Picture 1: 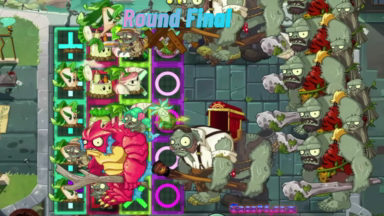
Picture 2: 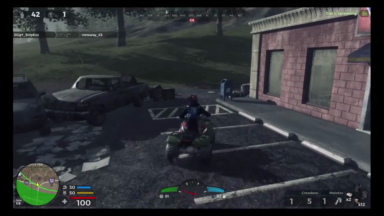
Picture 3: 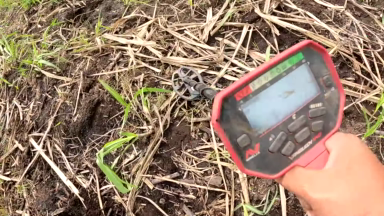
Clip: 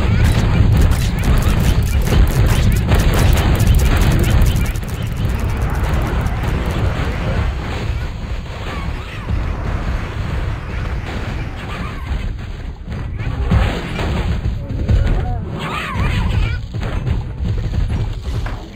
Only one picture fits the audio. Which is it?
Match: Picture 1